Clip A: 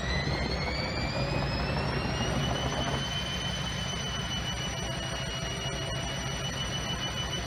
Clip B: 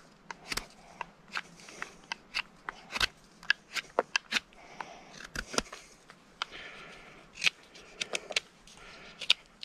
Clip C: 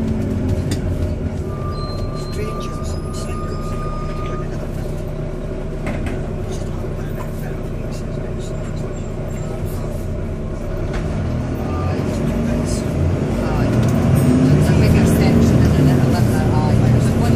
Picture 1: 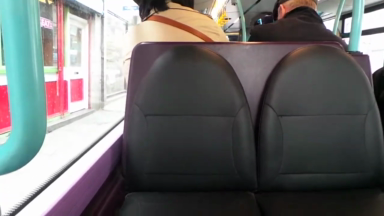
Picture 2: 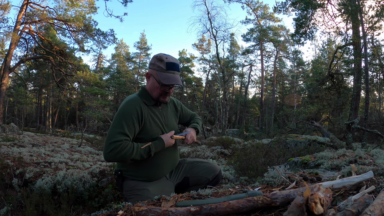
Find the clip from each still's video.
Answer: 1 C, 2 B